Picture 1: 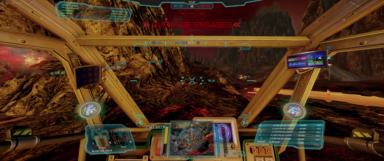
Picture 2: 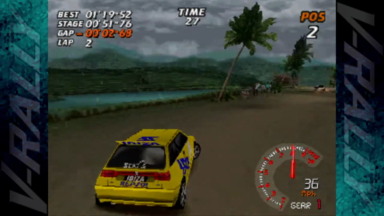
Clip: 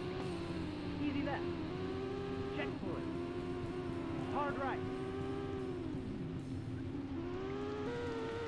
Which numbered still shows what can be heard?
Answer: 2